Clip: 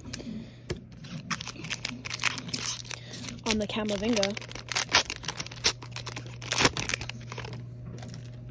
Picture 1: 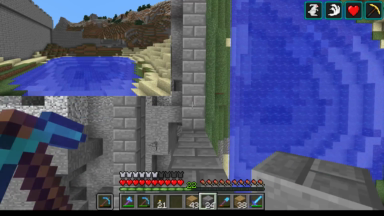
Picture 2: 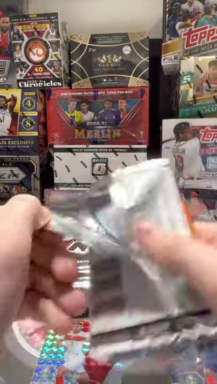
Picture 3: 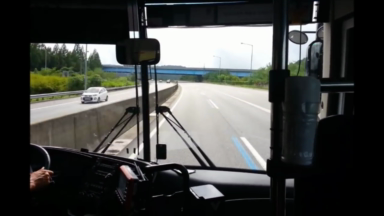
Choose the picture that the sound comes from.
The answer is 2